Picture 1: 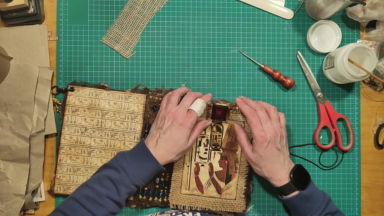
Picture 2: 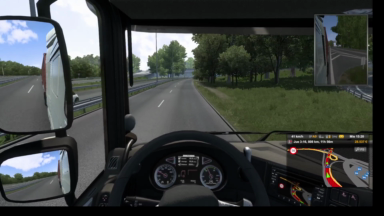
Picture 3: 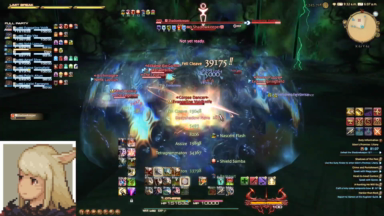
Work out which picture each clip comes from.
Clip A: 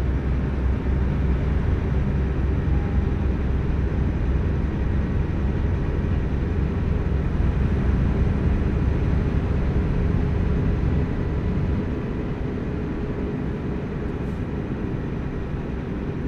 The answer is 2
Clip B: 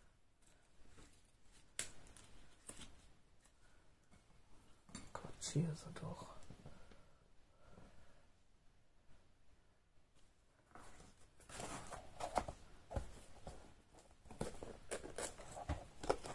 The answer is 1